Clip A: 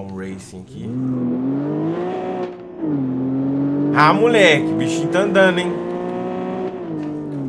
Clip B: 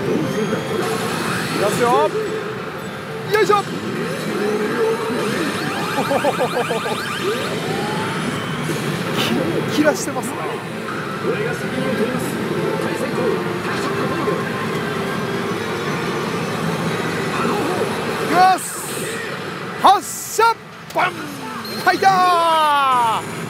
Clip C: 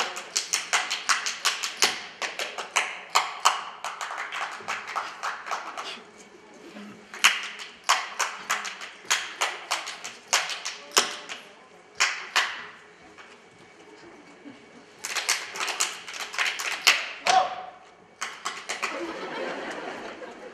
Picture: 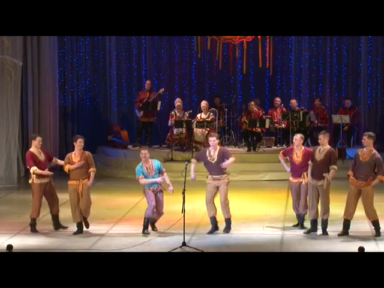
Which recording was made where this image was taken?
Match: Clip C